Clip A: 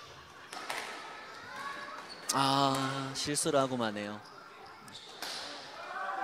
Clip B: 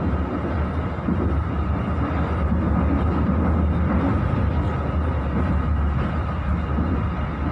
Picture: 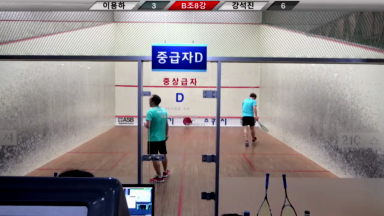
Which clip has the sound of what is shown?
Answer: A